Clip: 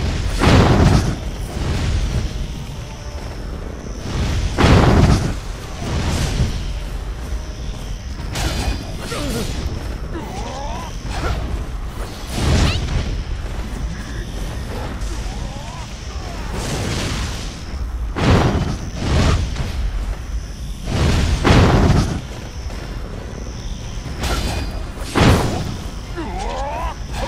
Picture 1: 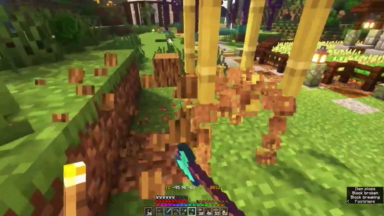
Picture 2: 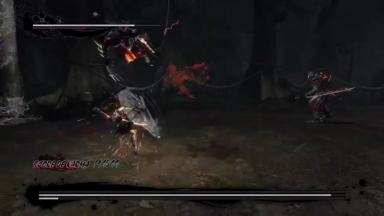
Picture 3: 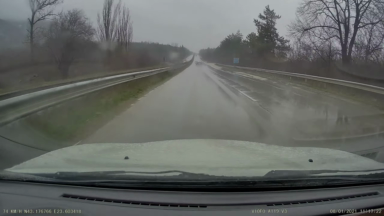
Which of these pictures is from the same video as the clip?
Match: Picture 2